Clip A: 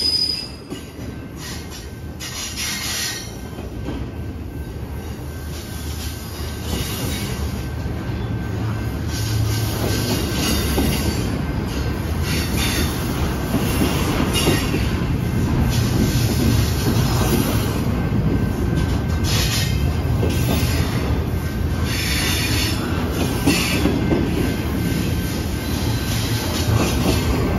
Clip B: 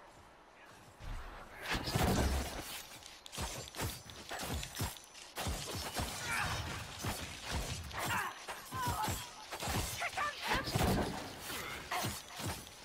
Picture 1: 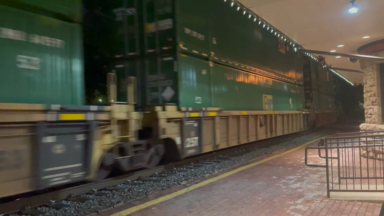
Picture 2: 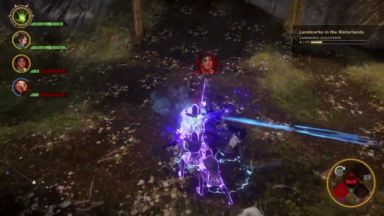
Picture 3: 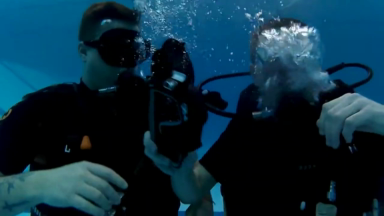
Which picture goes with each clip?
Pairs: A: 1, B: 2